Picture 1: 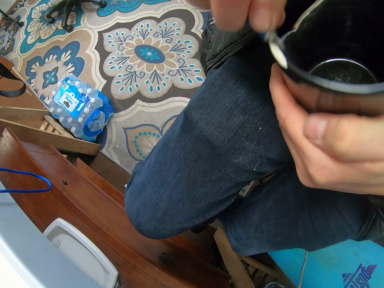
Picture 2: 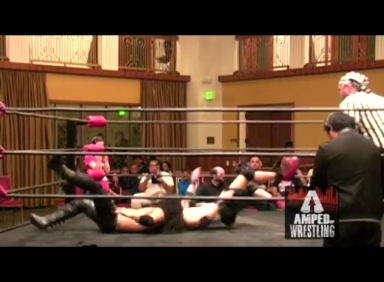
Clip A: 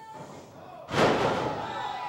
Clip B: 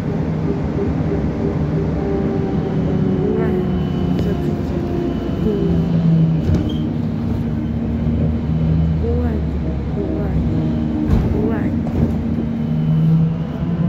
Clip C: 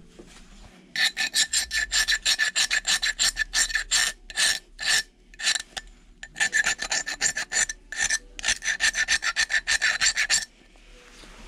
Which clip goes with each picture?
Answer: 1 C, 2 A